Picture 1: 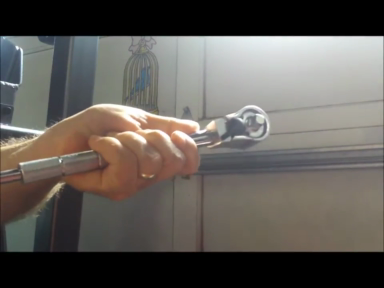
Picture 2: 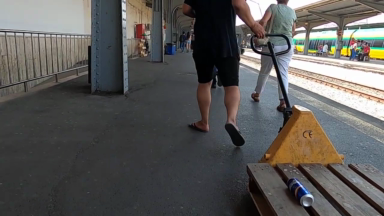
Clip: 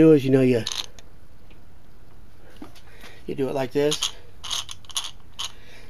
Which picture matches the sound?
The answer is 1